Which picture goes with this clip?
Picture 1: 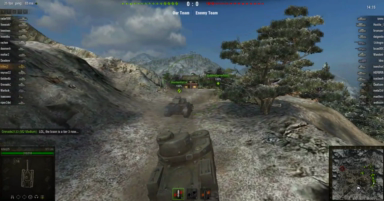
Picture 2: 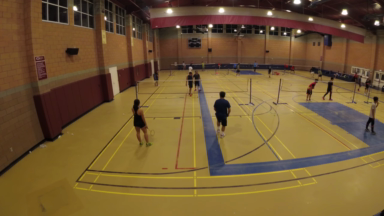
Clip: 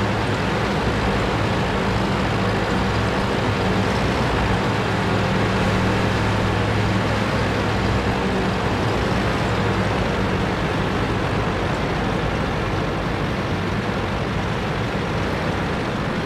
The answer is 1